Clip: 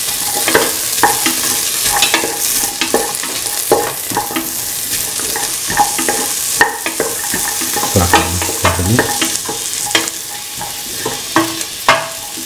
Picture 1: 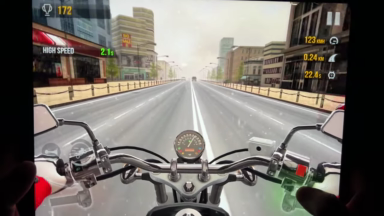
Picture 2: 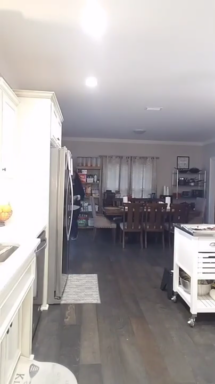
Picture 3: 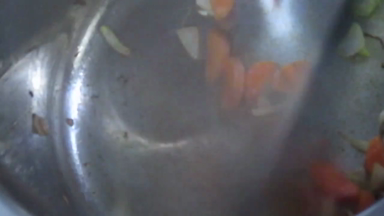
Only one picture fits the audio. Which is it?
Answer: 3